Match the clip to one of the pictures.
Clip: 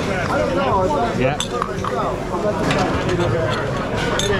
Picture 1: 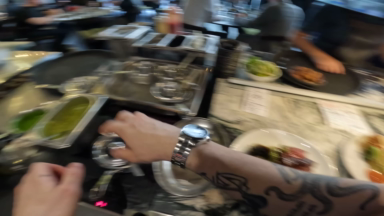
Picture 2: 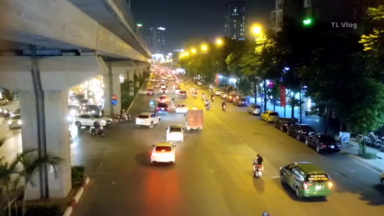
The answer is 1